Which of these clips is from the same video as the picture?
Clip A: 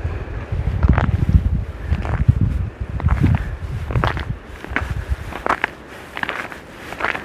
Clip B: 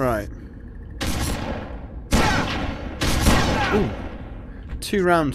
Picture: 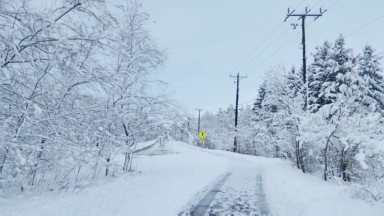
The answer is A